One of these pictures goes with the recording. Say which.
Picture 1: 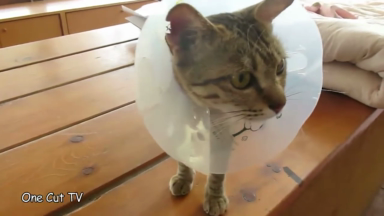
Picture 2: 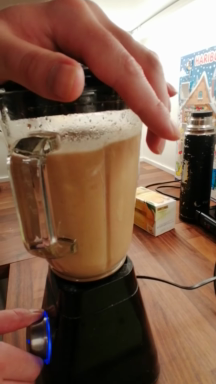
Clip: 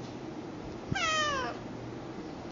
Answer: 1